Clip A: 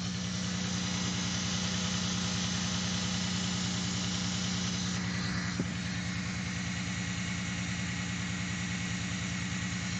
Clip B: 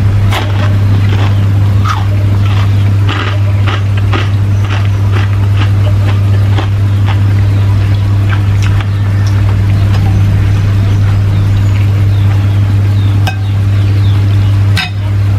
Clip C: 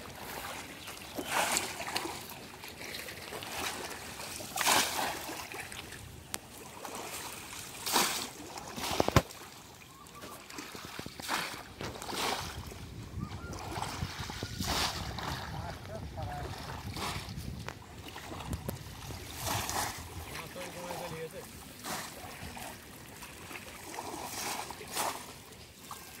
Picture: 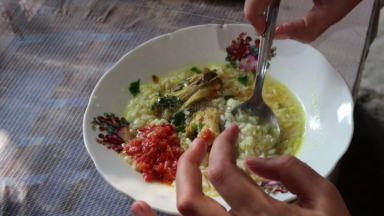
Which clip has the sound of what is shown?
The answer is B